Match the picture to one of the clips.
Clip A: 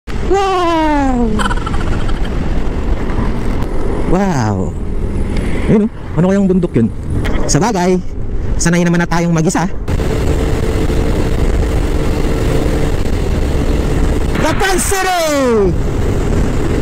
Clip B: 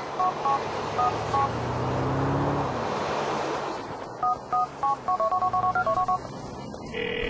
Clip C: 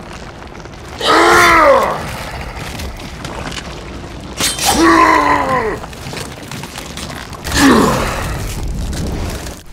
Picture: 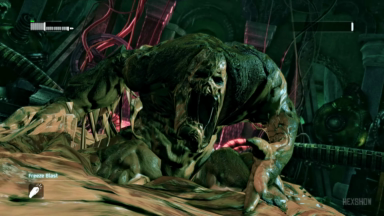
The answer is C